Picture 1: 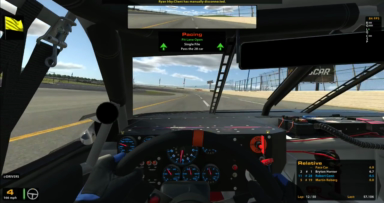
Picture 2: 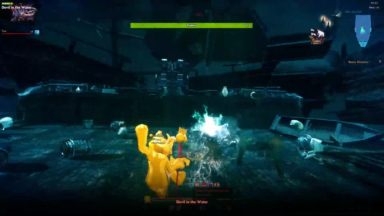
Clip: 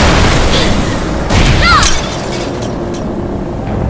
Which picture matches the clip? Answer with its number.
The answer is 2